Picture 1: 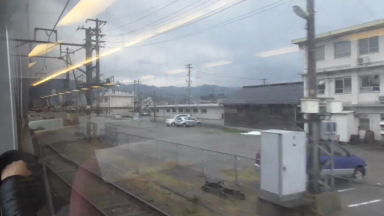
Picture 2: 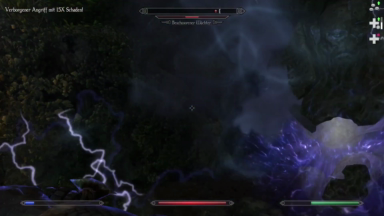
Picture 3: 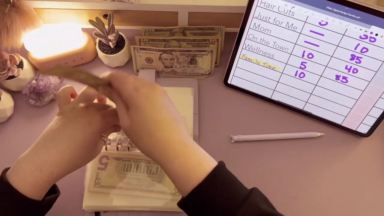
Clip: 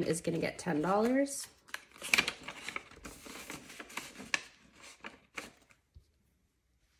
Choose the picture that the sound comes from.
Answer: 3